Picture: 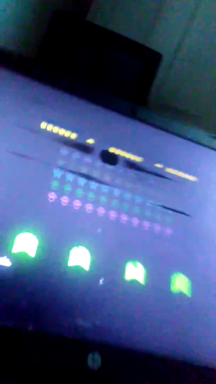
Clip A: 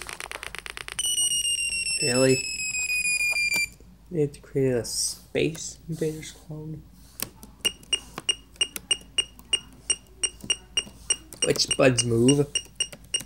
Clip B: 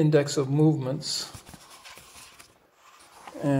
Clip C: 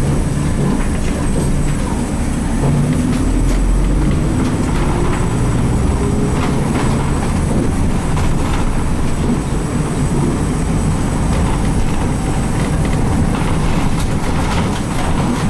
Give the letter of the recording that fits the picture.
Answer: A